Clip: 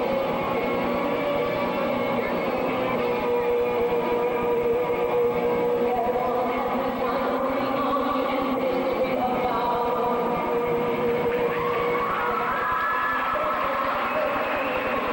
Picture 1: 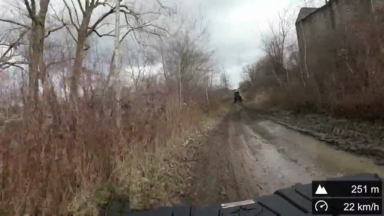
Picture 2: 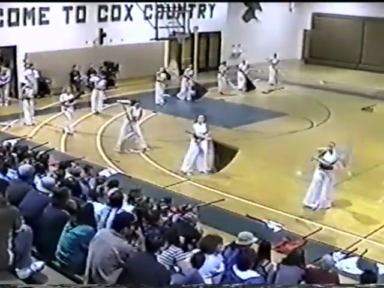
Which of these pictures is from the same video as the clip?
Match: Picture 2